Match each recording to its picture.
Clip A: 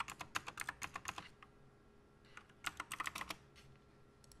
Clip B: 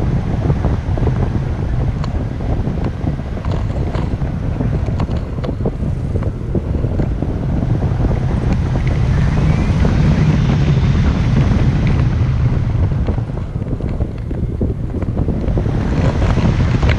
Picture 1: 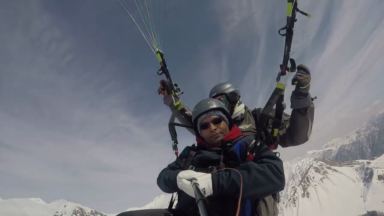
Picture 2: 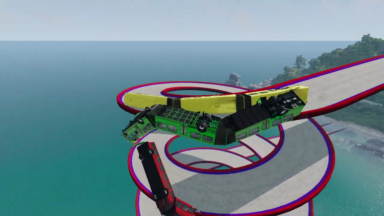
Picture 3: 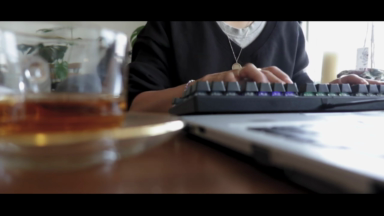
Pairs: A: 3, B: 1